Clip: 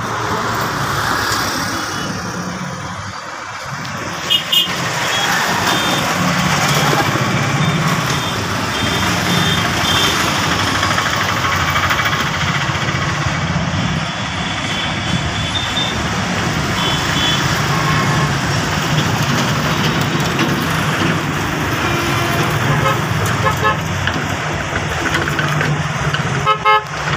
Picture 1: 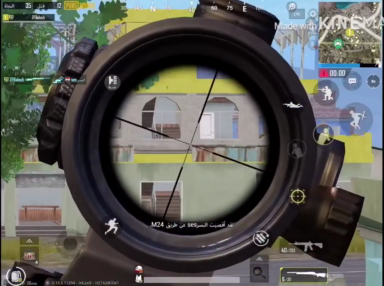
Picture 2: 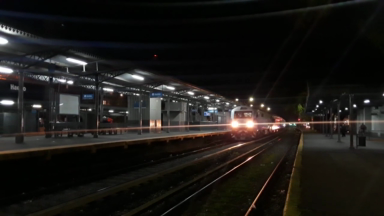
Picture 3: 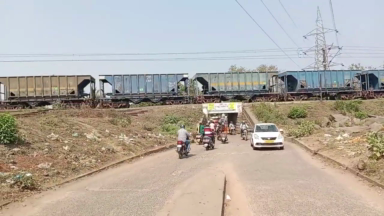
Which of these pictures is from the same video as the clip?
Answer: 3